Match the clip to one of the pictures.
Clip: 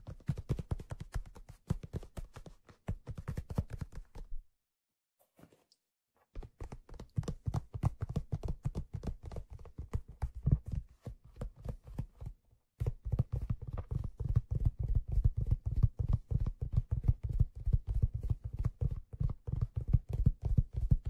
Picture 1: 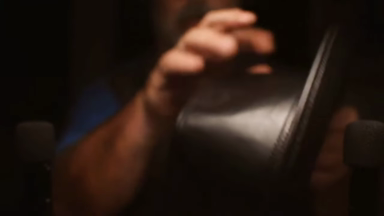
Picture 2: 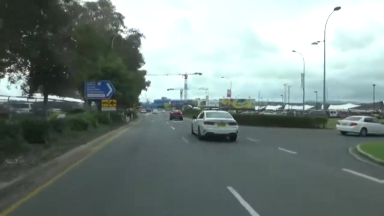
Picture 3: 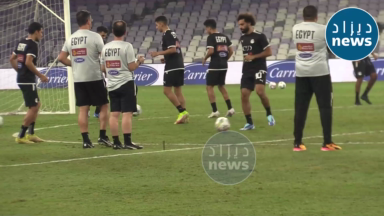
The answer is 1